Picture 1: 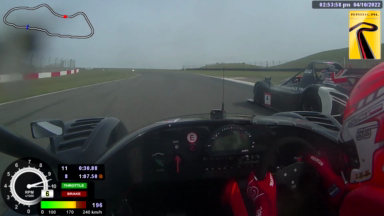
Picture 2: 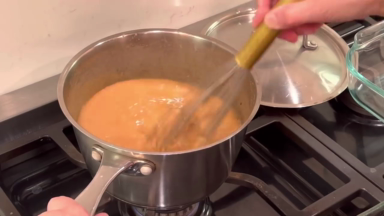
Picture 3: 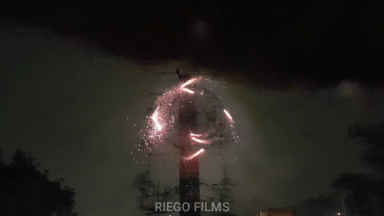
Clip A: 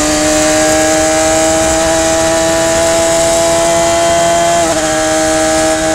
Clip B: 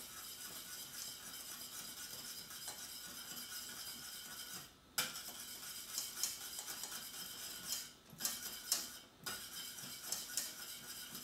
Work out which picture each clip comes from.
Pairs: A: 1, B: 2